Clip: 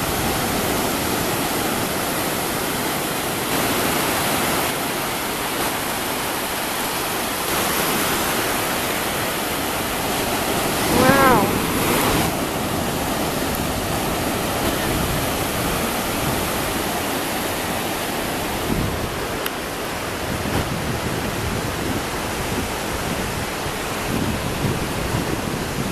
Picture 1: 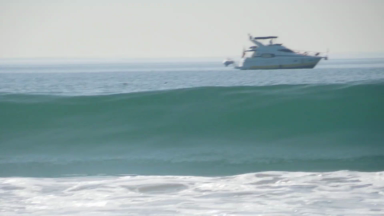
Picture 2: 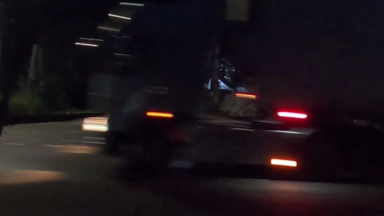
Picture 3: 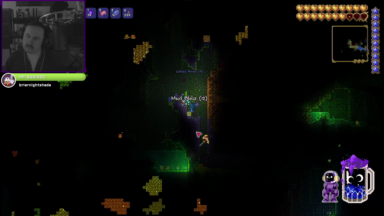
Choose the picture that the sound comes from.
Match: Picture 1